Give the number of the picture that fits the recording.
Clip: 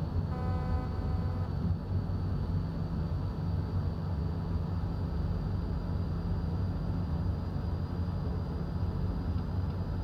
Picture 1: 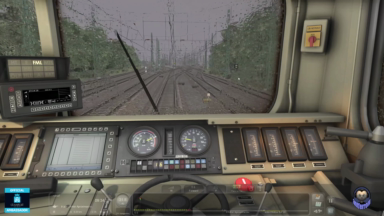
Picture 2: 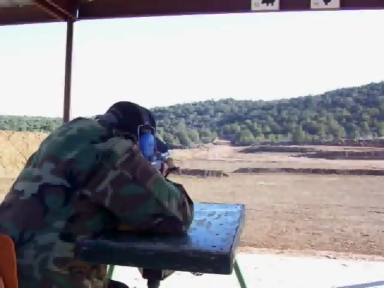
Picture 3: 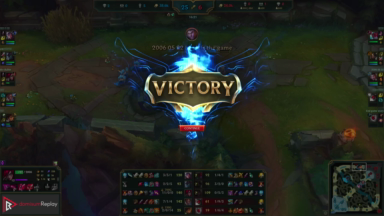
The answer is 1